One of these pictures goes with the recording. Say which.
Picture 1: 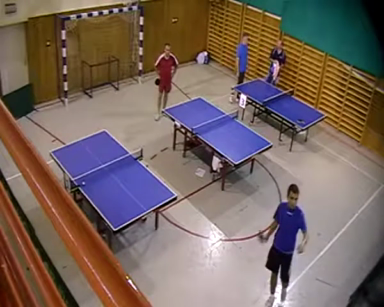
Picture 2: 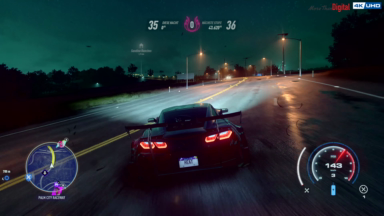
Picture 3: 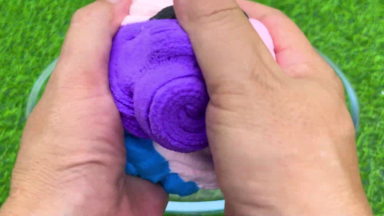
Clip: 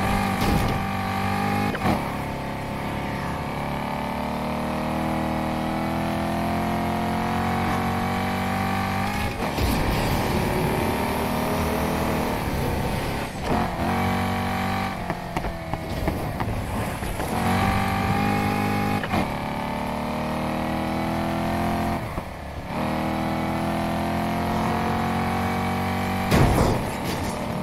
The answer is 2